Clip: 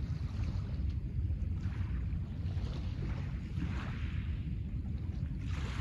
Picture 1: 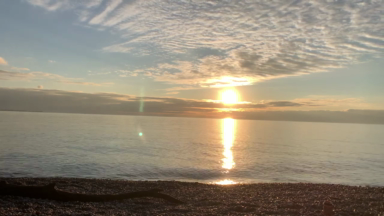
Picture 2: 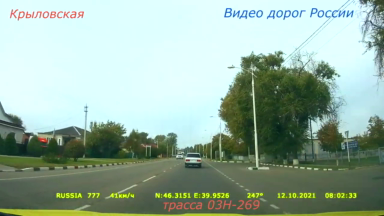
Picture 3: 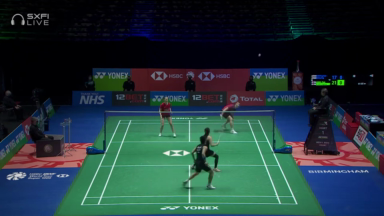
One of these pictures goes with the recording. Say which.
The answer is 1